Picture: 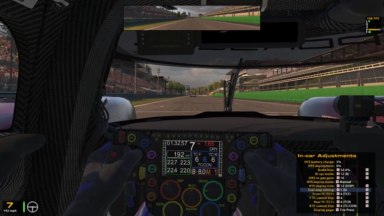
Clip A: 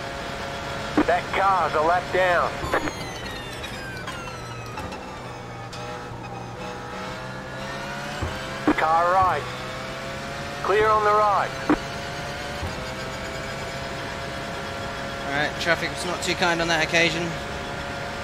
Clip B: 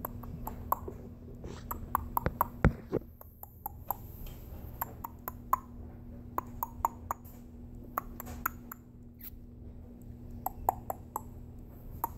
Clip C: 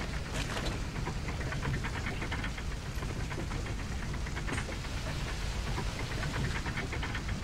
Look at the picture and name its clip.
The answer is A